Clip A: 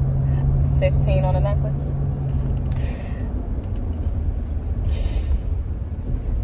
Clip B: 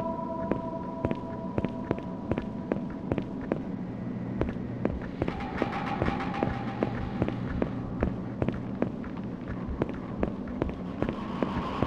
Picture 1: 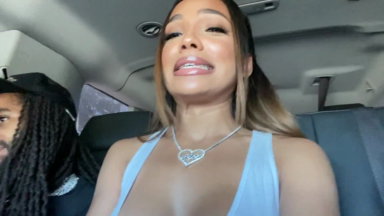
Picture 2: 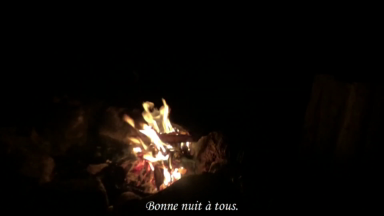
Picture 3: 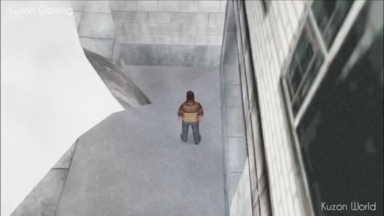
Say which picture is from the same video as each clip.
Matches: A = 1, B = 3